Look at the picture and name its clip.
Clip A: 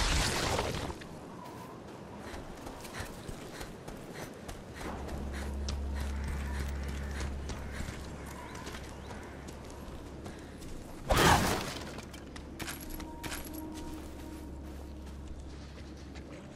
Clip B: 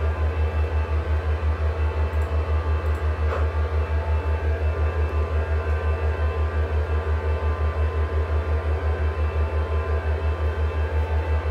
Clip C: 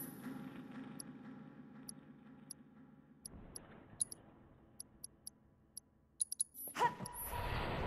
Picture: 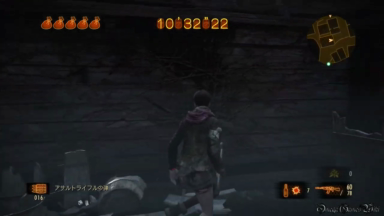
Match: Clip A